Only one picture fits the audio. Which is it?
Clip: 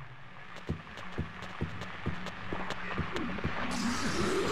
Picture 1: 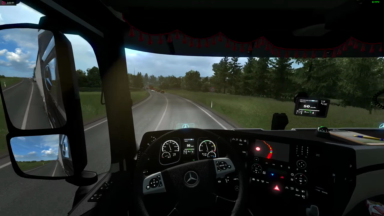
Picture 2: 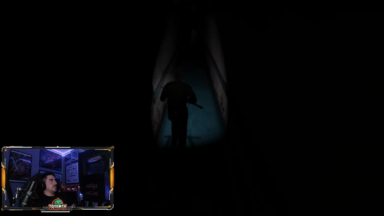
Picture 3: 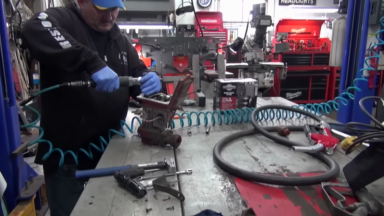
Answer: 2